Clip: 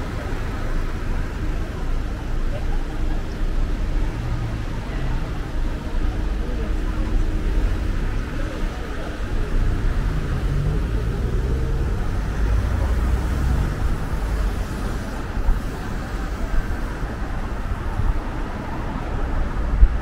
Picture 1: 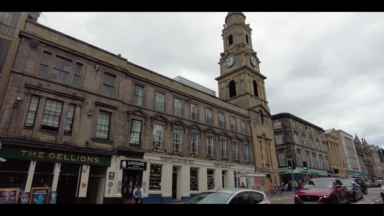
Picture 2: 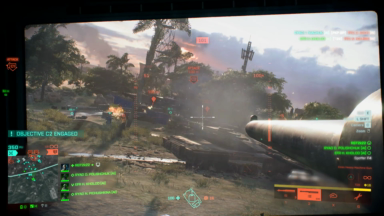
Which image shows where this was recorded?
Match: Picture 1